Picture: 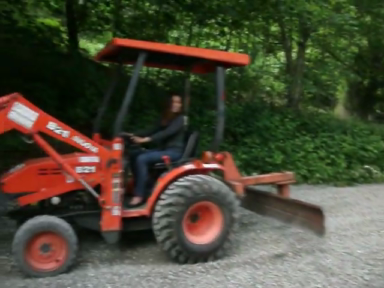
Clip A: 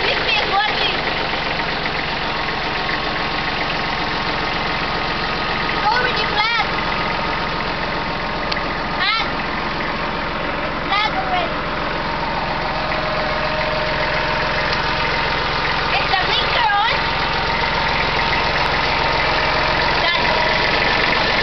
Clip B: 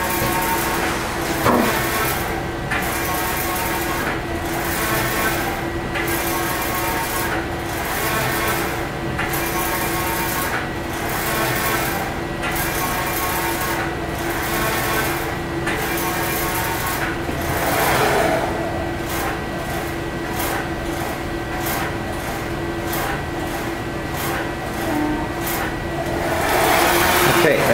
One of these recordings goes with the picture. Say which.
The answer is A